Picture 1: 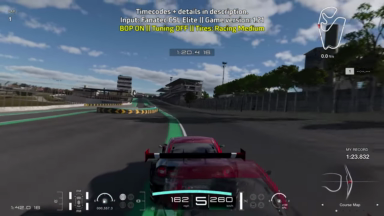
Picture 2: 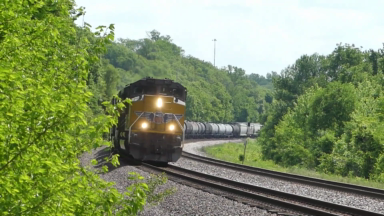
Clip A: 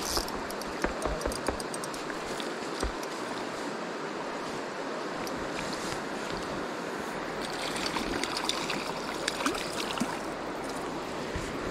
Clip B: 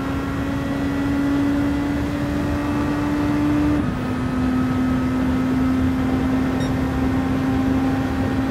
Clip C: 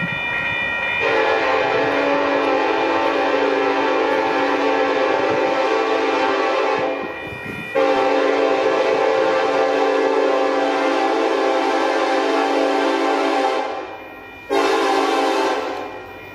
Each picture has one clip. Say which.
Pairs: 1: B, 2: C